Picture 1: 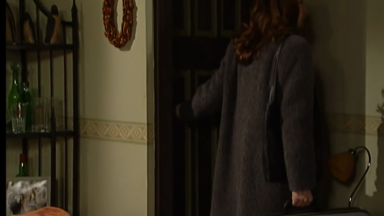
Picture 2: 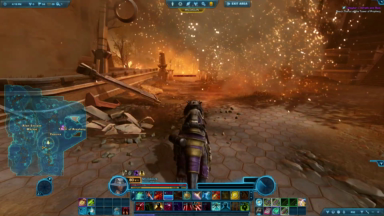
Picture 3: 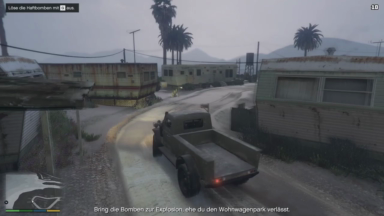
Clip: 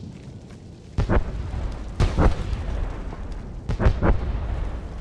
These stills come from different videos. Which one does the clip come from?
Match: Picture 2